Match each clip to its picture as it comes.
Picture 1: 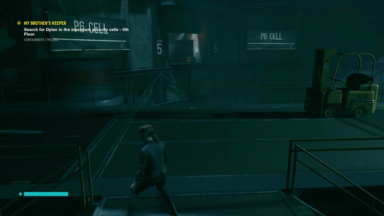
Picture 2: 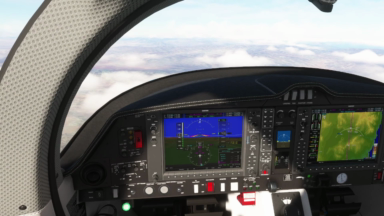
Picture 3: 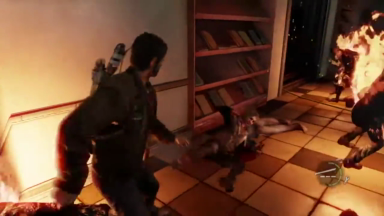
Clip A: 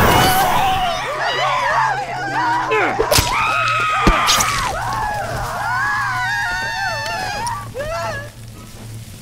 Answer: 3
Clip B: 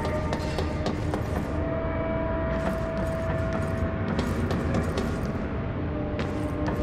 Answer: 1